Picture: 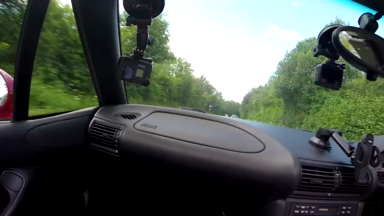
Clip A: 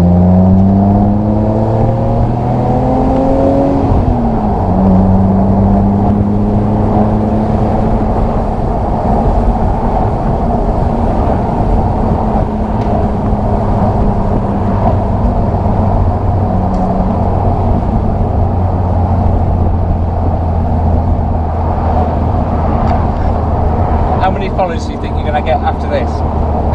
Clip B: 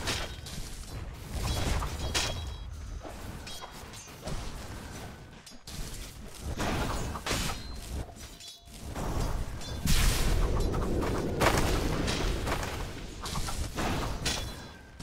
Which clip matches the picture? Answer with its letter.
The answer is A